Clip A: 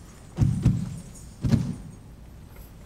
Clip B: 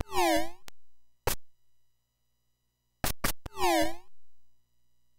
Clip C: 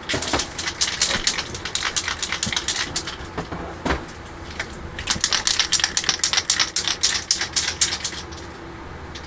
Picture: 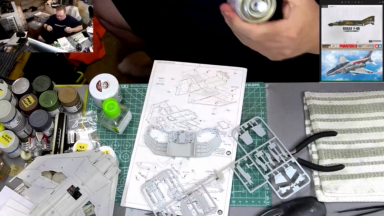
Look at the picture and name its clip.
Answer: C